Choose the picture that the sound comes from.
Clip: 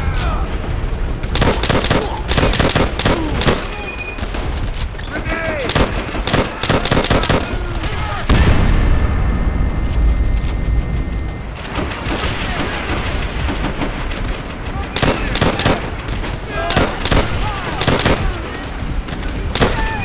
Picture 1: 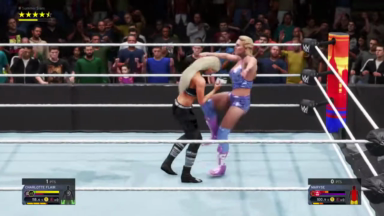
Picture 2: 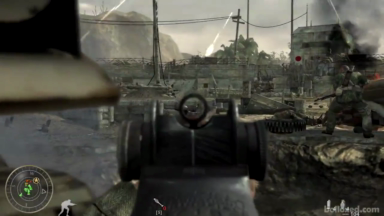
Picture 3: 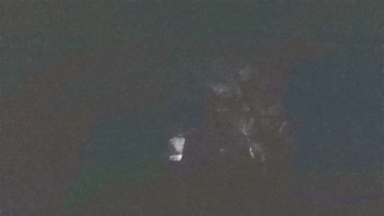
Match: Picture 2